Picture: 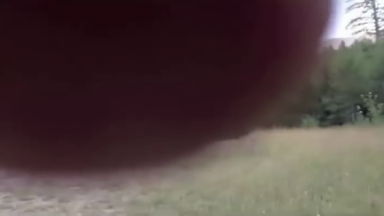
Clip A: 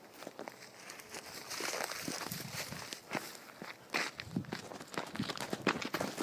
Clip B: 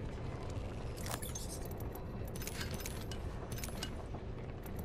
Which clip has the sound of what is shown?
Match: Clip A